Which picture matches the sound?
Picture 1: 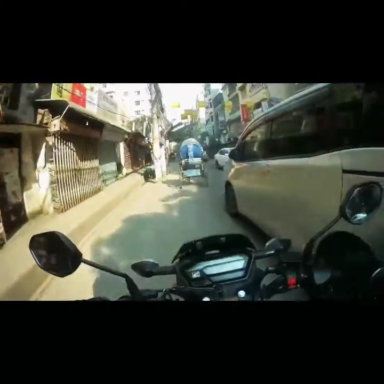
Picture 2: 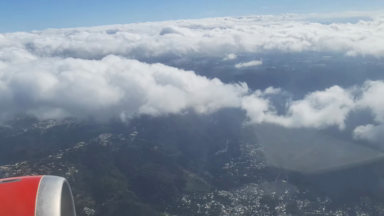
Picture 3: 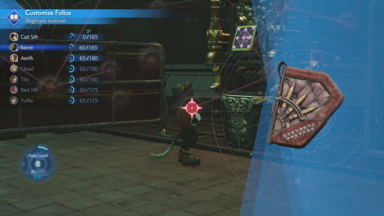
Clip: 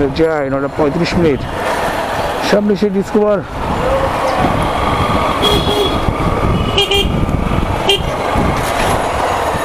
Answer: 1